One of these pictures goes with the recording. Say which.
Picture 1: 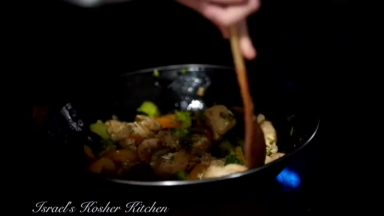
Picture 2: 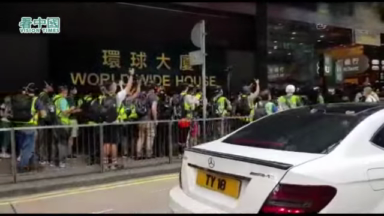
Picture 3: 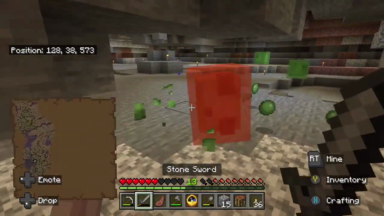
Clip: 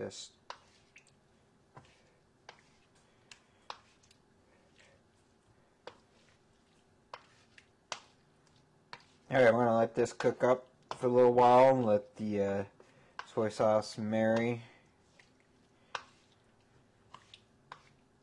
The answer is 1